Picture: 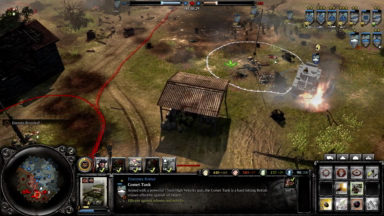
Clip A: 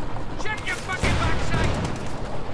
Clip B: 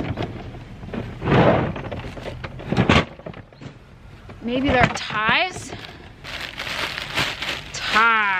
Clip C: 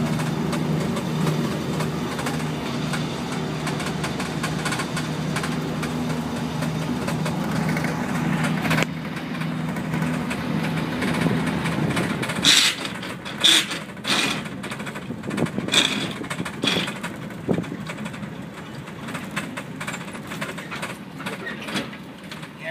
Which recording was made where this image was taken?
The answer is A